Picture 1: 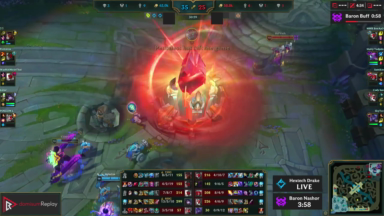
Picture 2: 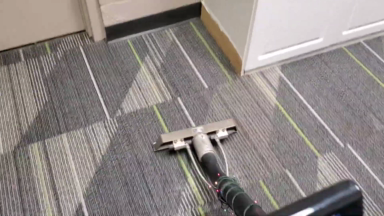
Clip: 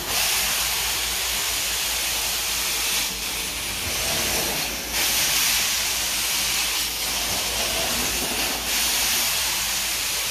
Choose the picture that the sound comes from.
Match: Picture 2